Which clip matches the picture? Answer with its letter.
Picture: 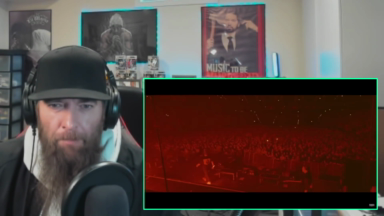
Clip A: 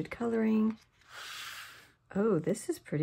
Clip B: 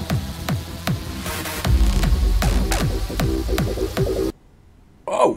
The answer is B